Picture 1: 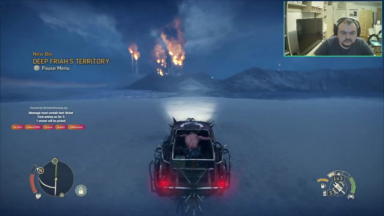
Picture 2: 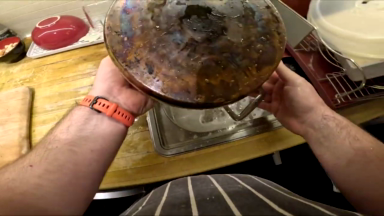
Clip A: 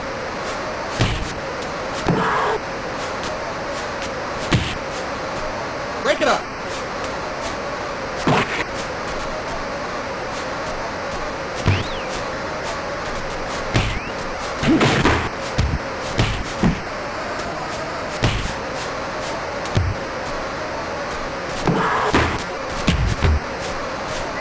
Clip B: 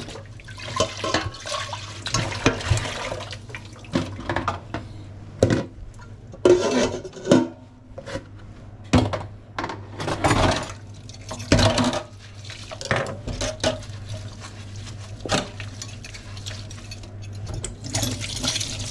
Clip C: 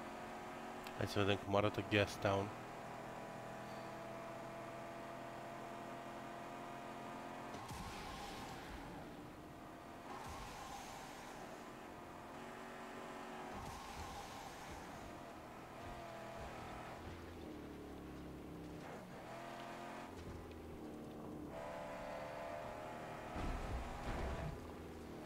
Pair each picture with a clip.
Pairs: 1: C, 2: B